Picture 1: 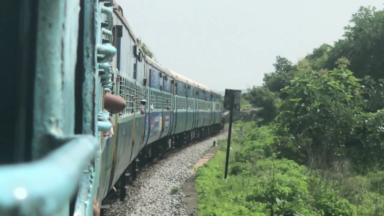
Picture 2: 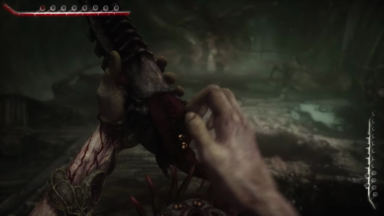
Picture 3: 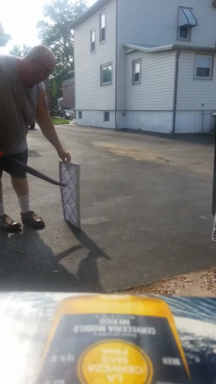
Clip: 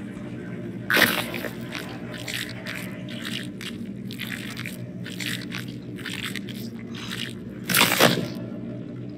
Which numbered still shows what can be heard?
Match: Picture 2